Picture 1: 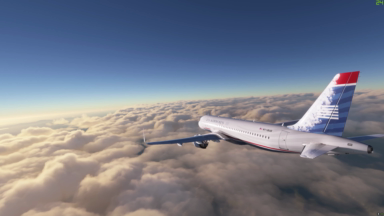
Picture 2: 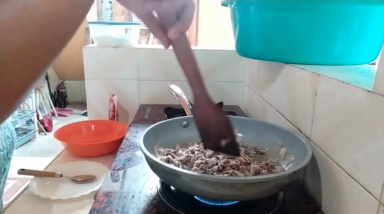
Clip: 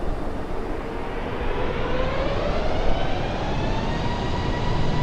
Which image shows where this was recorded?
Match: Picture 1